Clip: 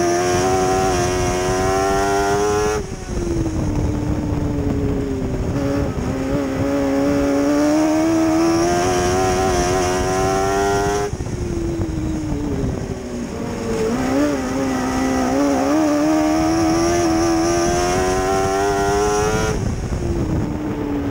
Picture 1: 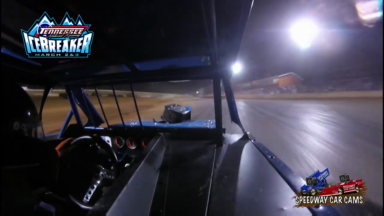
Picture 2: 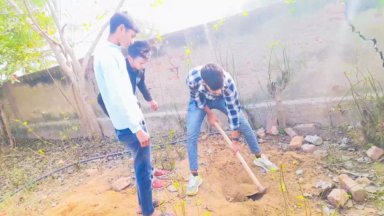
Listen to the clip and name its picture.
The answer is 1